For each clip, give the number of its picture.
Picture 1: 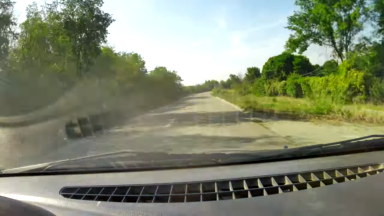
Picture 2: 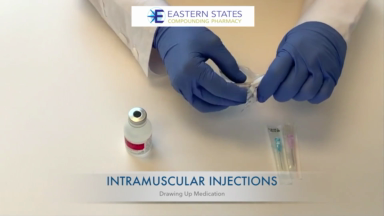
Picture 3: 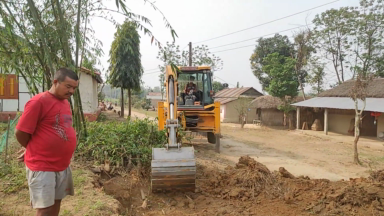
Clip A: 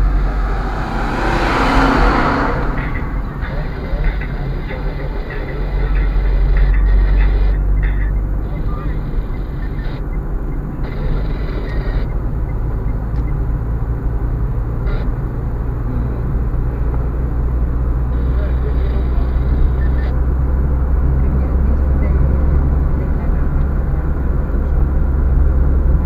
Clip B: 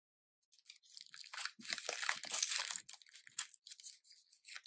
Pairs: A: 1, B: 2